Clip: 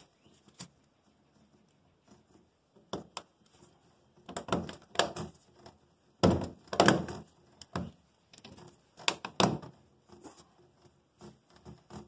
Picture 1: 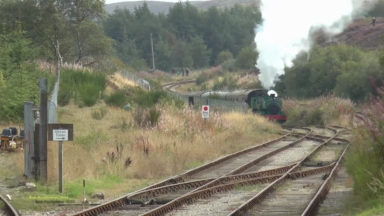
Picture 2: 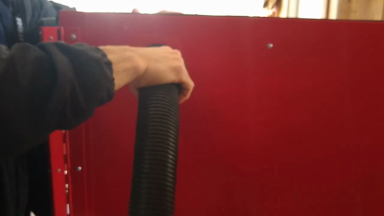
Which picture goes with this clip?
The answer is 2